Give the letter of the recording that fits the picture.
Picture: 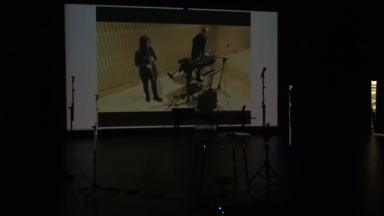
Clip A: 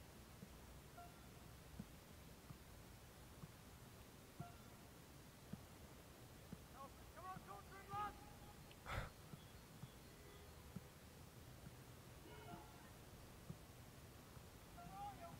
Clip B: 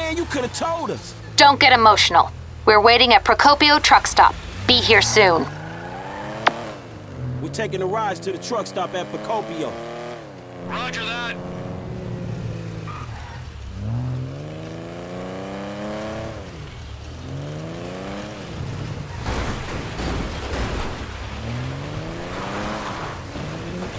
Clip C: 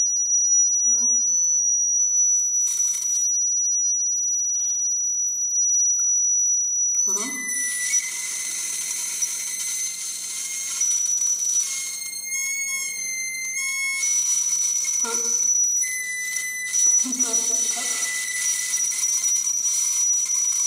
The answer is C